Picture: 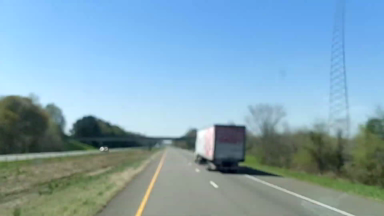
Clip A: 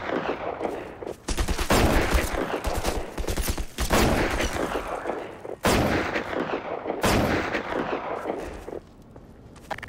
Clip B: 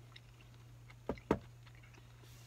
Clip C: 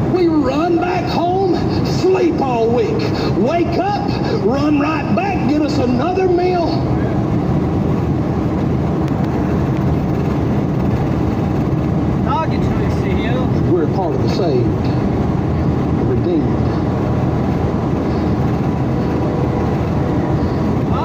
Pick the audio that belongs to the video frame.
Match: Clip C